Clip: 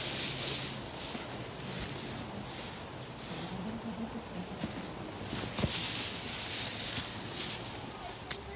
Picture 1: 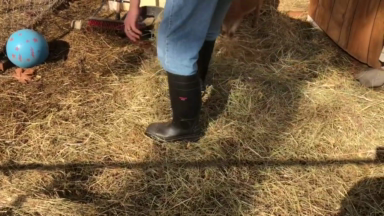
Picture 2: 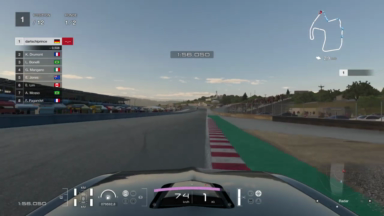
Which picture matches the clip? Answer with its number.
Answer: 1